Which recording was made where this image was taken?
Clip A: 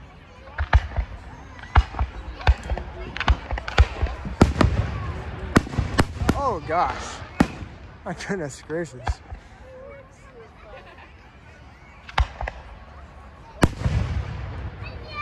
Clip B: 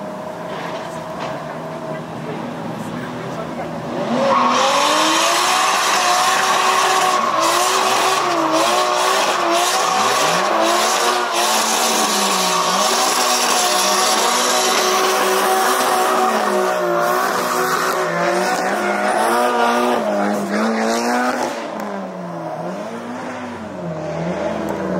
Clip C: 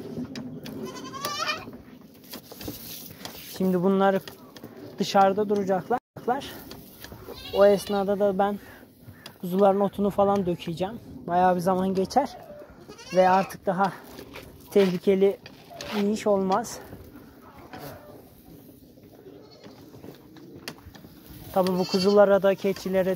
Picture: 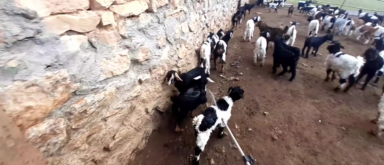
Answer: C